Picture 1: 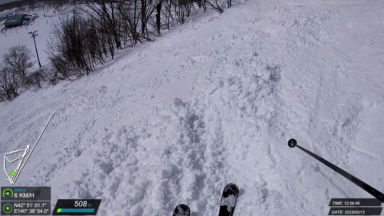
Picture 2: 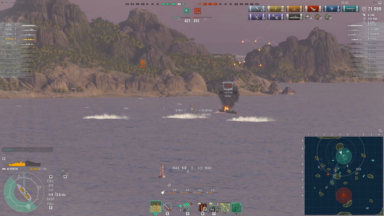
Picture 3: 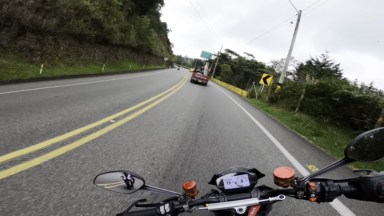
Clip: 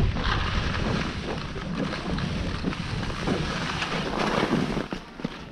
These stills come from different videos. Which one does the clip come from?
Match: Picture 1